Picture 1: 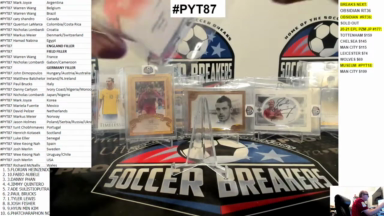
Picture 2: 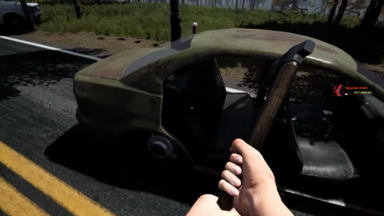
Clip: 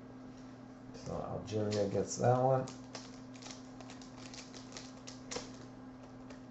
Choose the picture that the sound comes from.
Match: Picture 1